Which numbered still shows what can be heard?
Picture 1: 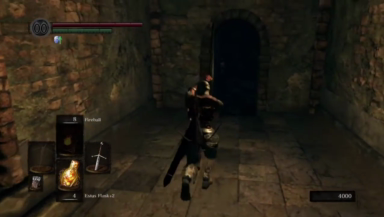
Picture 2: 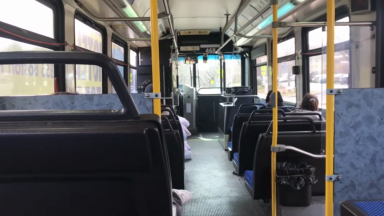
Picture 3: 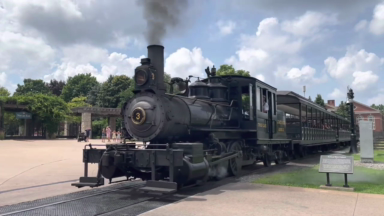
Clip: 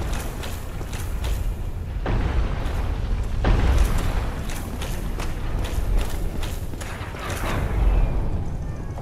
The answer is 1